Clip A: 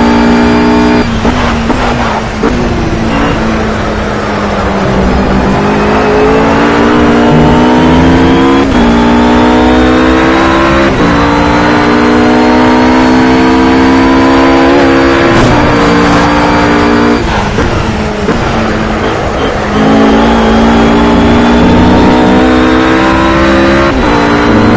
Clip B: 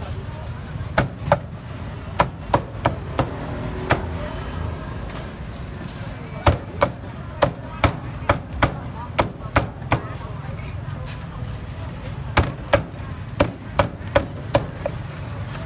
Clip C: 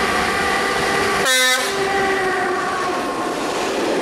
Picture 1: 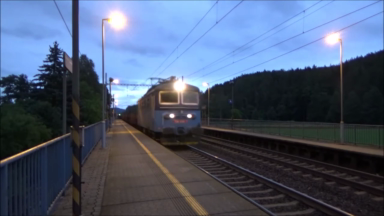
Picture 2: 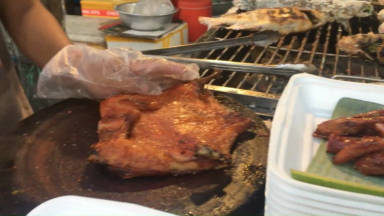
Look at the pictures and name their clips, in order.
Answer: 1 C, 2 B